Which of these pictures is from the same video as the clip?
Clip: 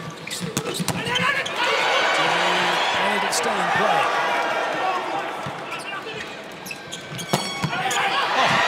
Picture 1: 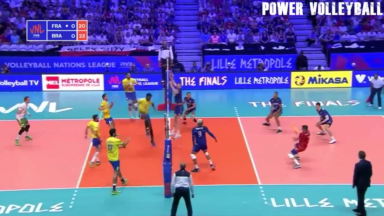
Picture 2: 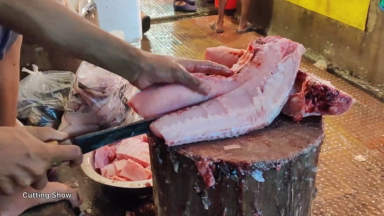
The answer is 1